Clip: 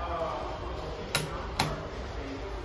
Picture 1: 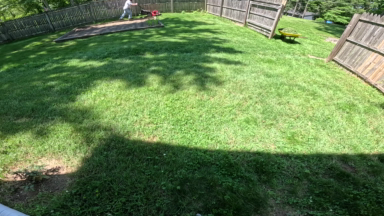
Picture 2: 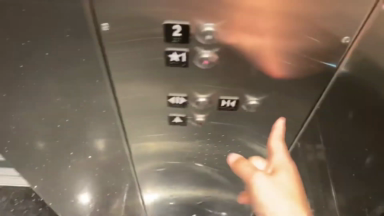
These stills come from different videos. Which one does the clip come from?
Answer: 2